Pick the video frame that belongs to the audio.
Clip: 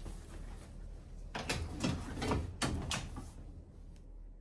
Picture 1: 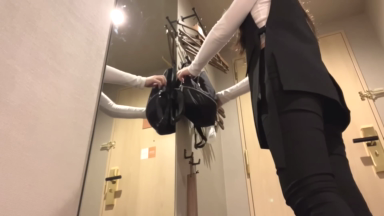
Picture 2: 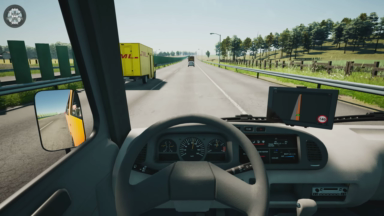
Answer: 1